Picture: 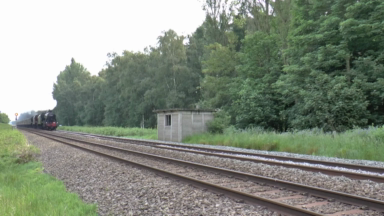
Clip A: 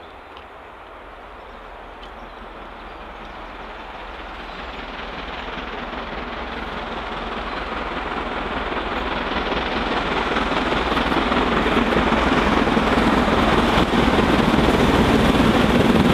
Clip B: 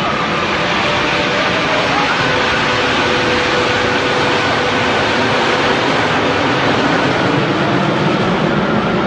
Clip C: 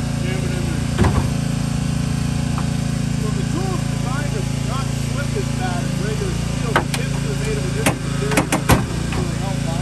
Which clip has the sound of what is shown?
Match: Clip A